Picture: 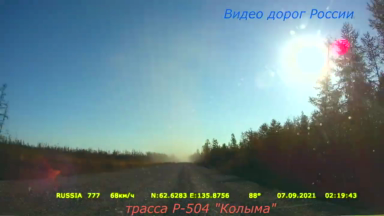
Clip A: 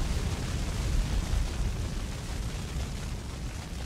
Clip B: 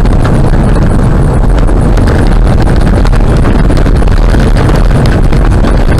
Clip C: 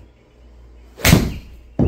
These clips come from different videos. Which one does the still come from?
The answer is B